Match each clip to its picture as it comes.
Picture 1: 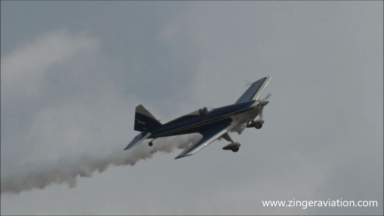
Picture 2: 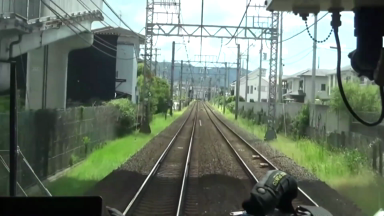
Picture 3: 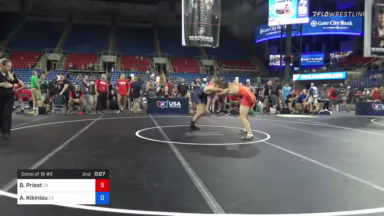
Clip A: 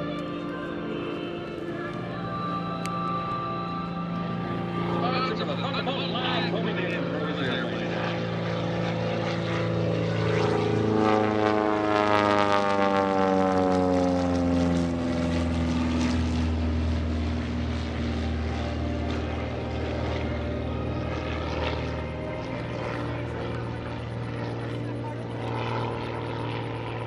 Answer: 1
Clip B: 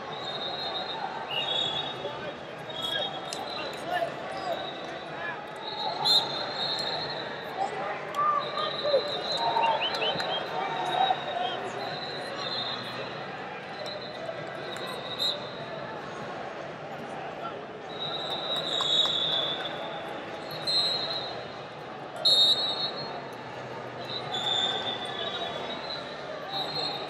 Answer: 3